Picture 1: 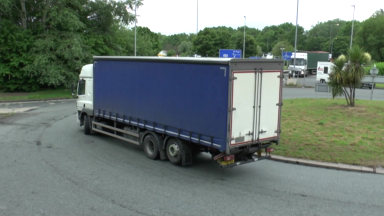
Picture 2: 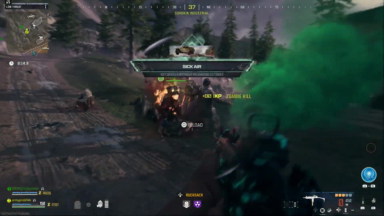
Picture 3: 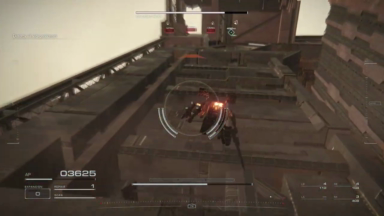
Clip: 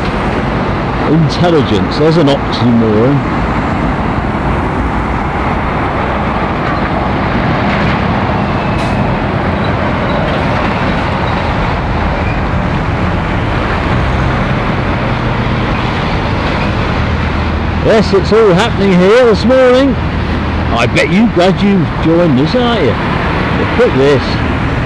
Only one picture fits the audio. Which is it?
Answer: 1